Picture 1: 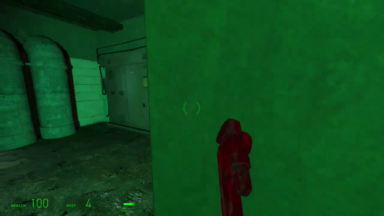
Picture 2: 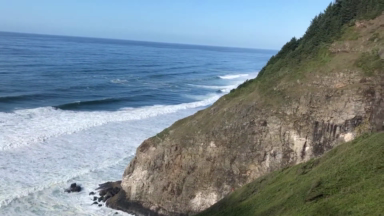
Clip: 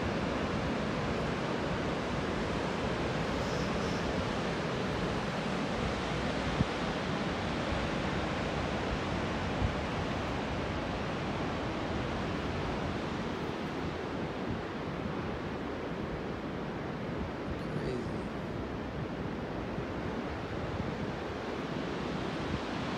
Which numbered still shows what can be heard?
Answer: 2